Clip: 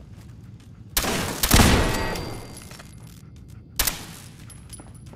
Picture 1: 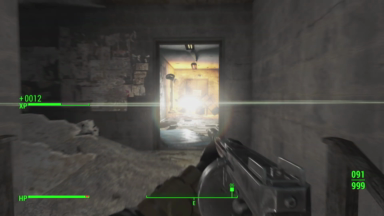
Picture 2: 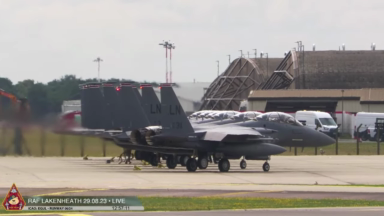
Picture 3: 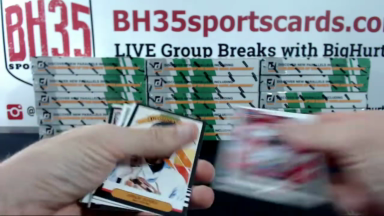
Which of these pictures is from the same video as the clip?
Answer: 1